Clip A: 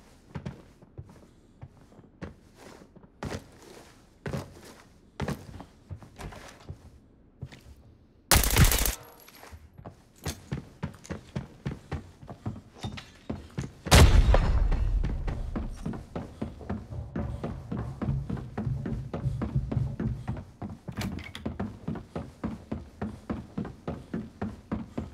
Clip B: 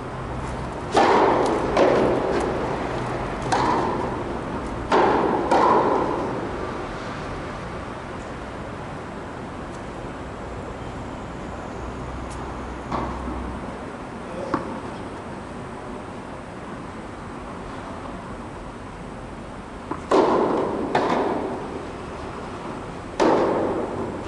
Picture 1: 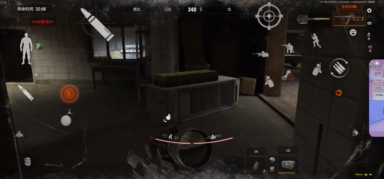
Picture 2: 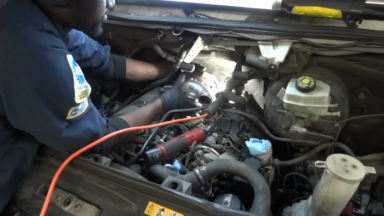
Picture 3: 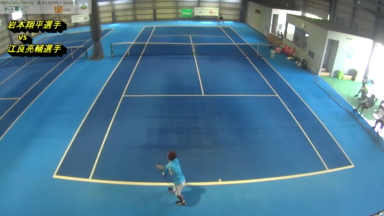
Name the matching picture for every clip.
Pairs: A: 1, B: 3